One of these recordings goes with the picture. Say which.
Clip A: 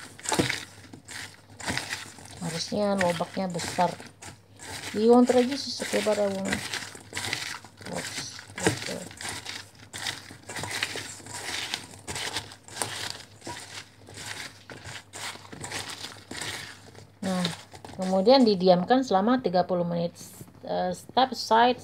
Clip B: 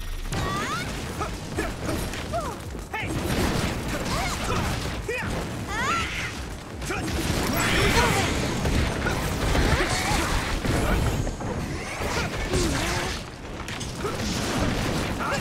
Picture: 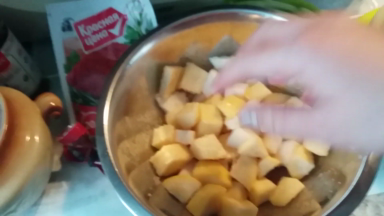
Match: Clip A